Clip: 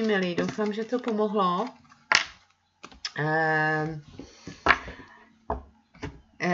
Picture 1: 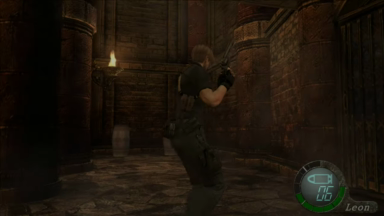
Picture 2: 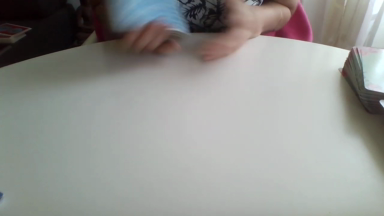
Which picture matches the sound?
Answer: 2